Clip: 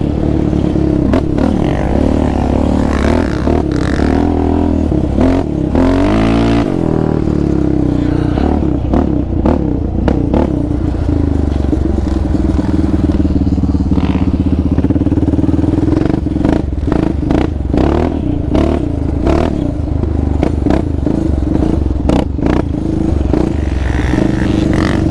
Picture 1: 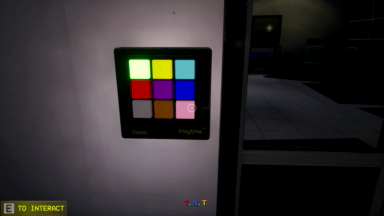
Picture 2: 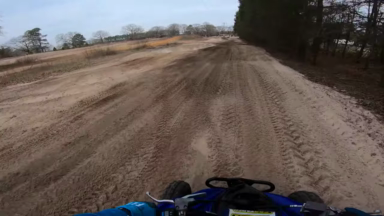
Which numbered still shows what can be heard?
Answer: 2